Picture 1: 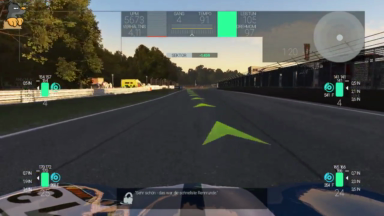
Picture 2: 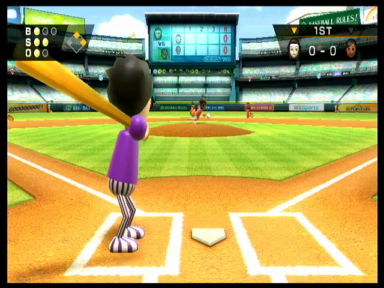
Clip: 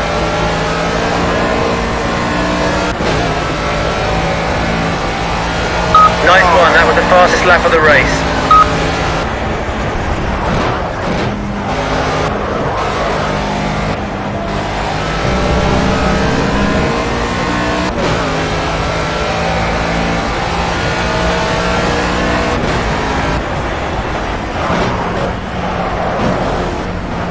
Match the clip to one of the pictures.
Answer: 1